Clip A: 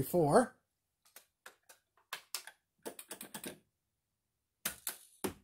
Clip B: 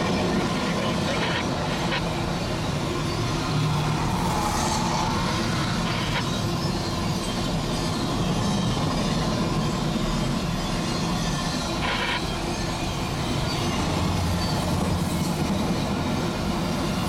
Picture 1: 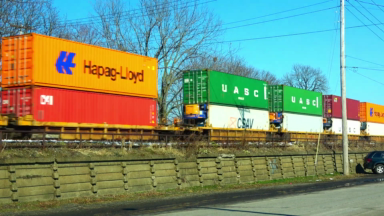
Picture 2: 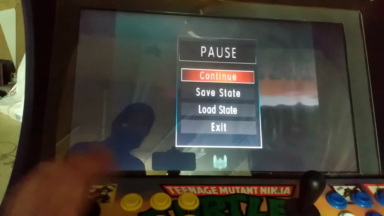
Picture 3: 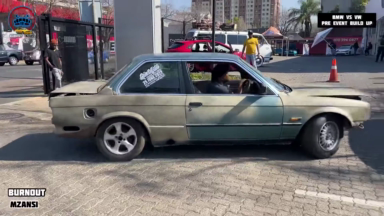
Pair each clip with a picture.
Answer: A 2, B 1